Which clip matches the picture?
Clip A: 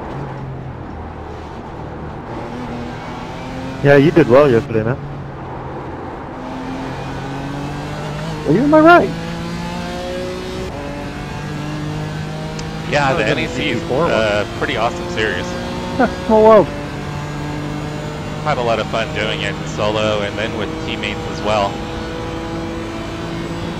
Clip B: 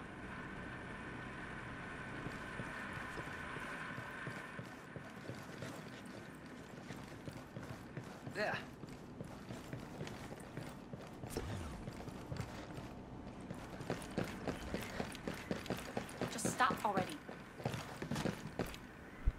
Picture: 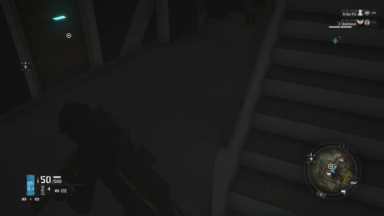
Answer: B